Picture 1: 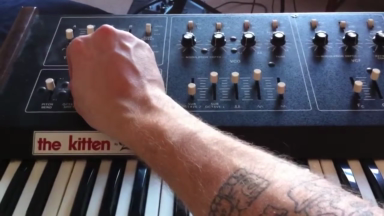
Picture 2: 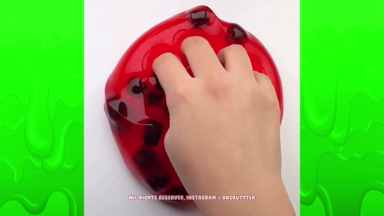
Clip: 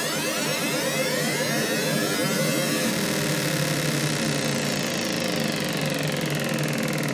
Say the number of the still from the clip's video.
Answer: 1